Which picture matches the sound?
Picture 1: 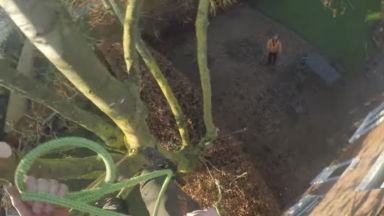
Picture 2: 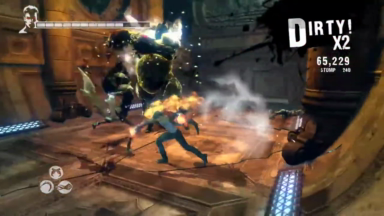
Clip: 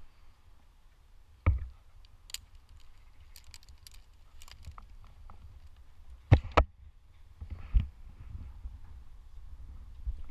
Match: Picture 1